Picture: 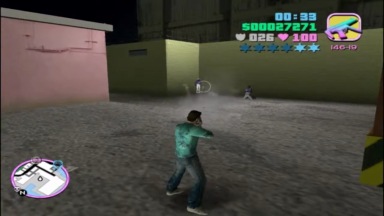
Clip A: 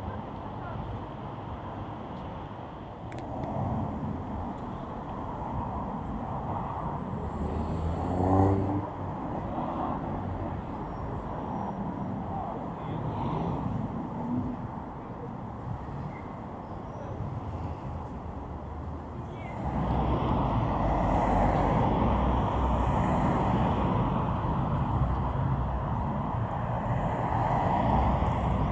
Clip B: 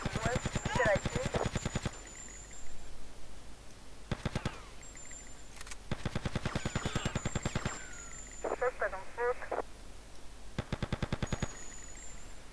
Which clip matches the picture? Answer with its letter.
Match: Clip B